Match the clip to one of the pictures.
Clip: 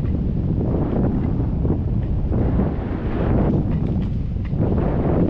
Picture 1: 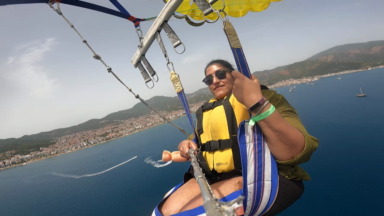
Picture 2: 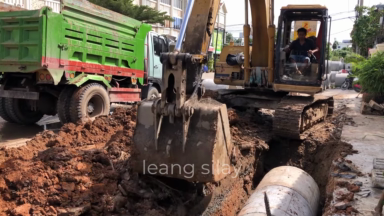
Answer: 1